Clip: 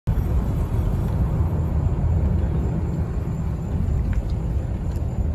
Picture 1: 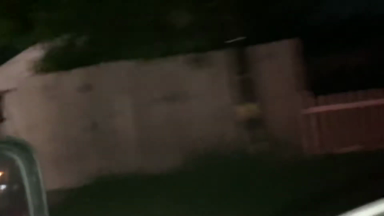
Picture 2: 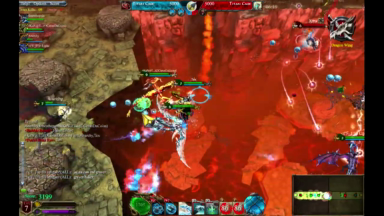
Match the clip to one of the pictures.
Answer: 1